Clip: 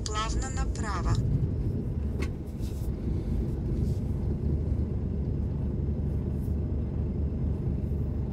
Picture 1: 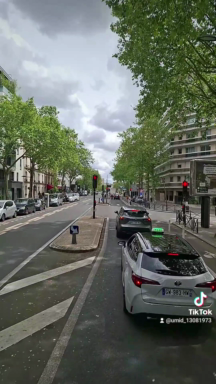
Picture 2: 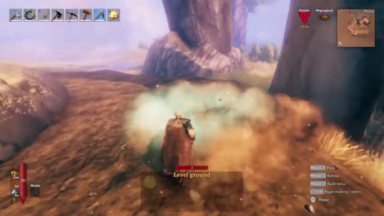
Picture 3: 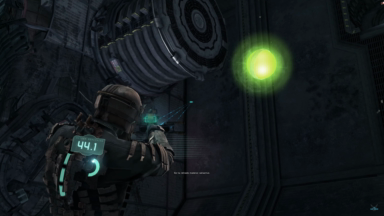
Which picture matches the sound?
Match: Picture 1